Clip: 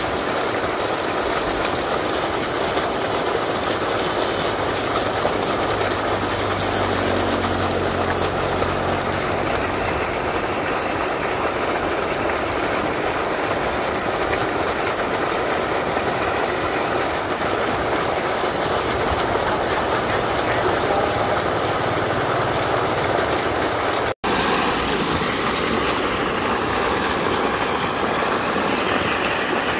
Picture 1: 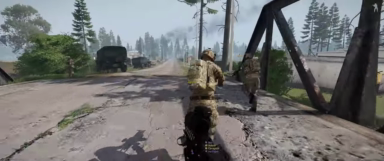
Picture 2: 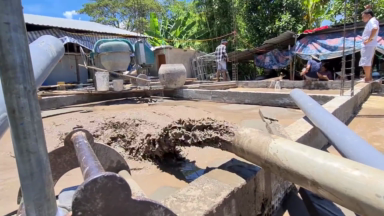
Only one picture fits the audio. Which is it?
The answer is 2